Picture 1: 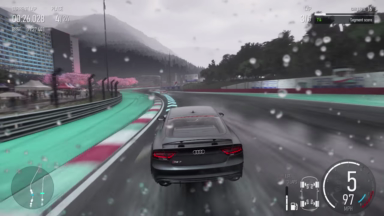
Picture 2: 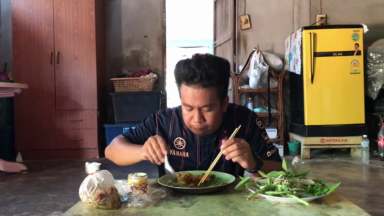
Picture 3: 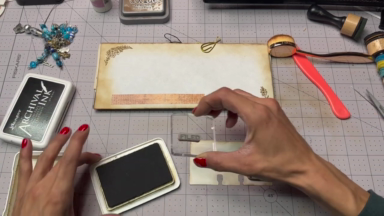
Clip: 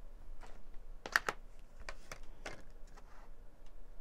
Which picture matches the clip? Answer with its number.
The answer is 3